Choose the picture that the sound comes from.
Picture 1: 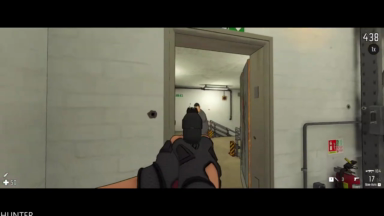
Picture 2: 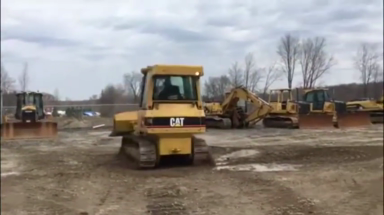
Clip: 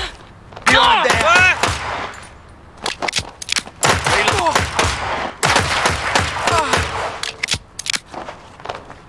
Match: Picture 1